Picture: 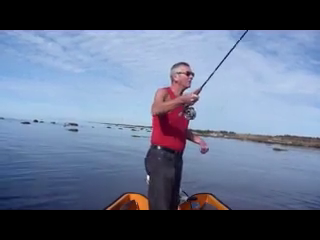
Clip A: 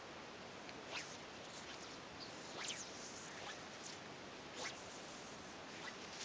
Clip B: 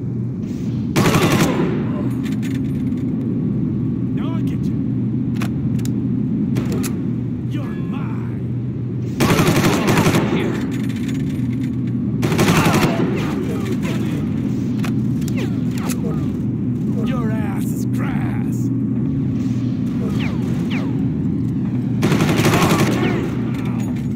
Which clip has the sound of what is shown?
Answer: A